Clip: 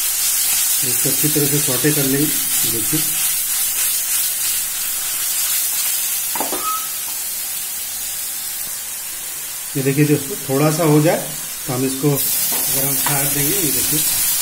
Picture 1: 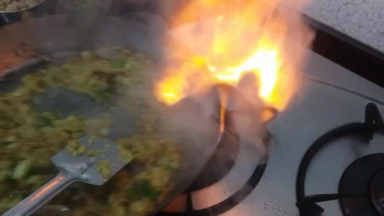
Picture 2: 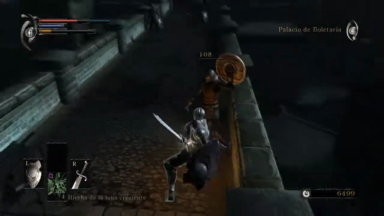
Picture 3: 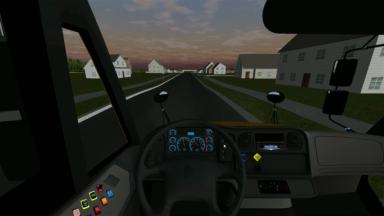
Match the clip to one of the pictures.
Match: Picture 1